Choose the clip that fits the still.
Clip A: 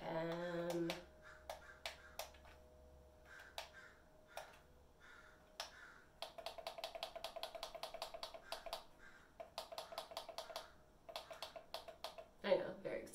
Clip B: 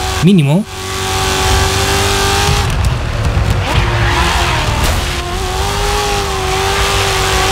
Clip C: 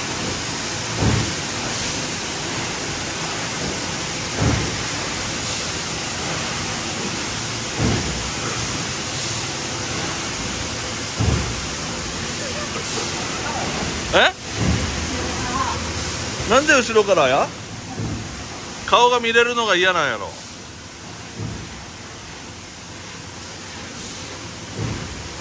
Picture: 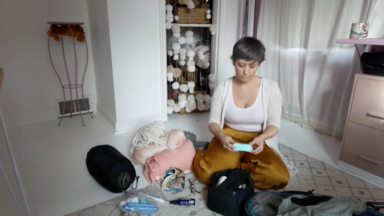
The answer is A